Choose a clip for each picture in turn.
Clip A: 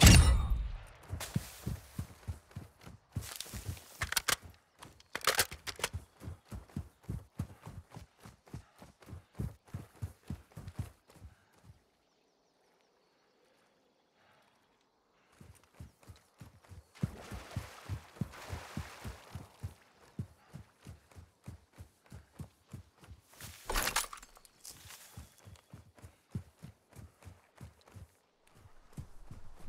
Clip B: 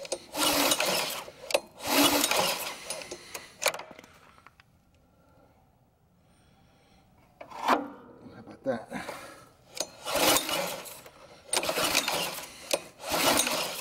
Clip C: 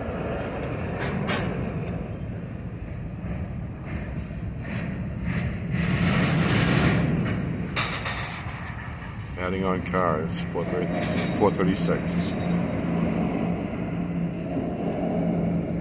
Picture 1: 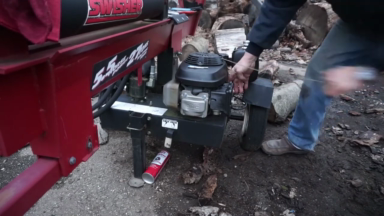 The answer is B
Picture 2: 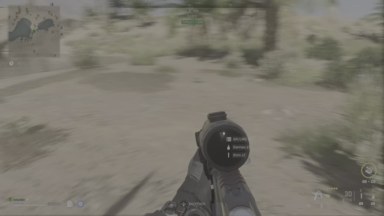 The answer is A